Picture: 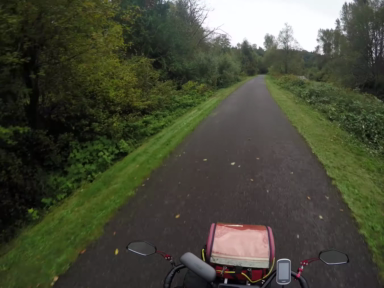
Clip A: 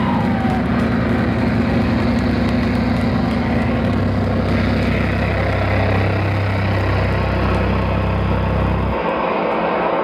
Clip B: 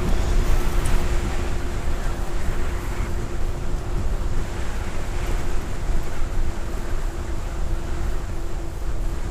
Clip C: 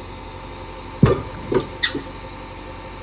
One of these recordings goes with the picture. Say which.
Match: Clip B